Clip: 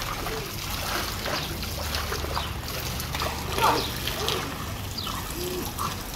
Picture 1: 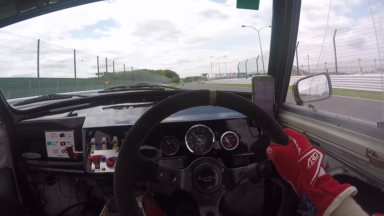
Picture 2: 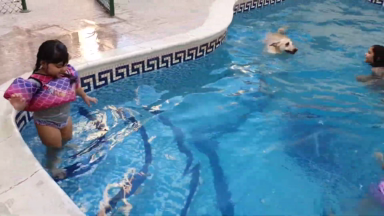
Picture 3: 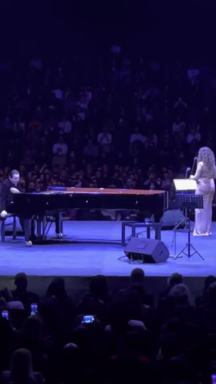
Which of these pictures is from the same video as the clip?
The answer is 2